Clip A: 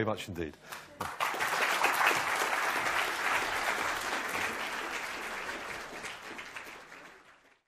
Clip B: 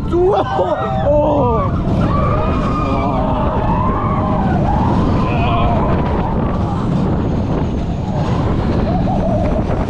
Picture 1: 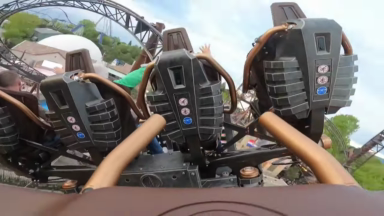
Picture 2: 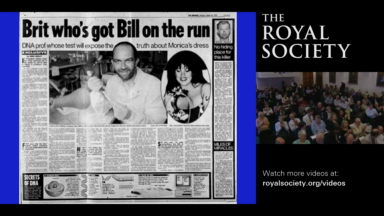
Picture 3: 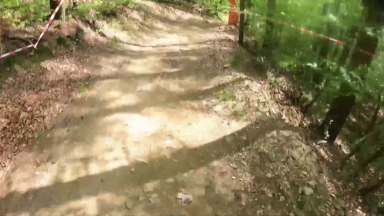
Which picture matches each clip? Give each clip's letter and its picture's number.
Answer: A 2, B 1